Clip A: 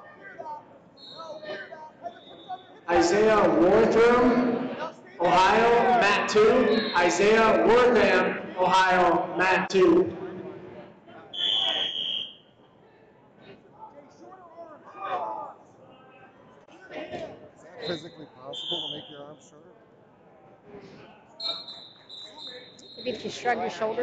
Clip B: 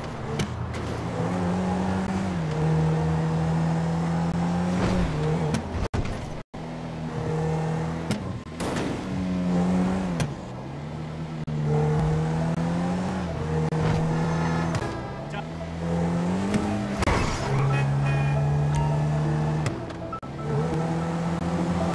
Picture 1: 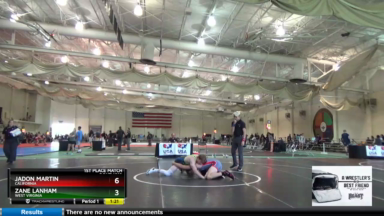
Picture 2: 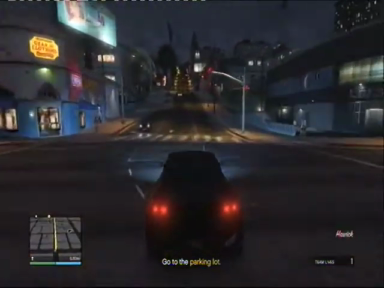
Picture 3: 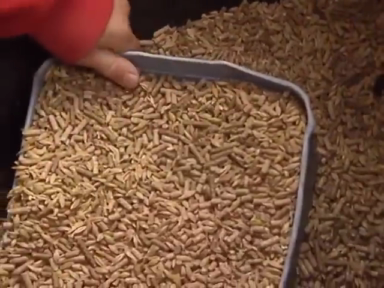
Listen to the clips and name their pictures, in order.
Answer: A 1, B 2